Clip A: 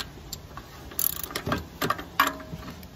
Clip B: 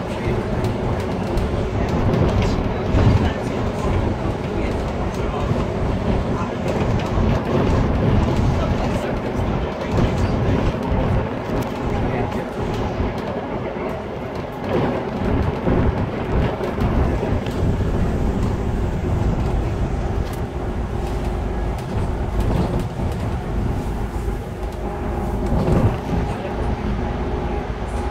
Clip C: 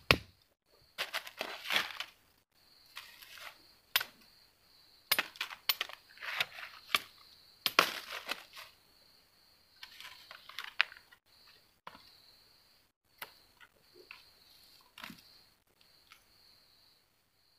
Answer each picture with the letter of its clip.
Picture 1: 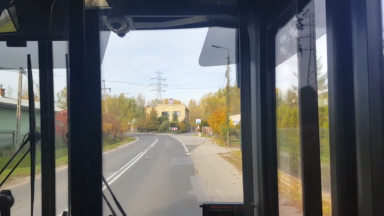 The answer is B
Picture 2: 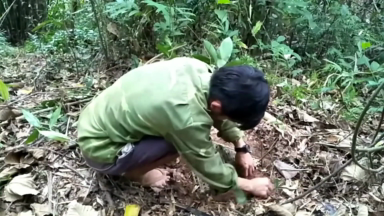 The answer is C